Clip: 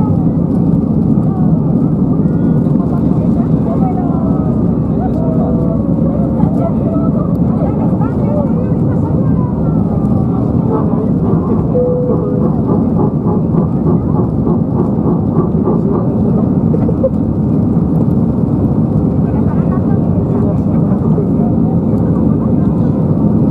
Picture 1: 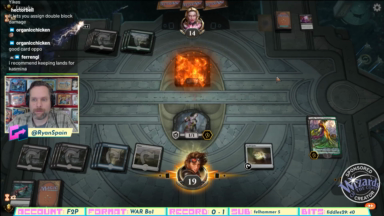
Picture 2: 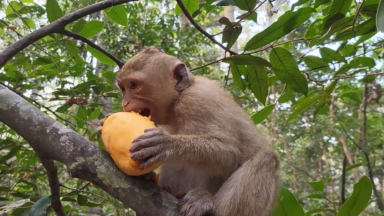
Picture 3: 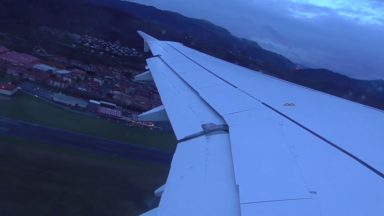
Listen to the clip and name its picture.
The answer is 3